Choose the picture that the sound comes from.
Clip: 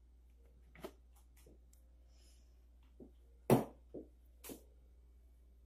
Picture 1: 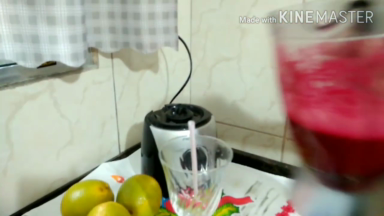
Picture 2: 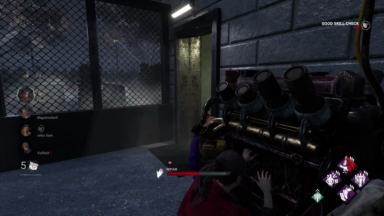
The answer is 1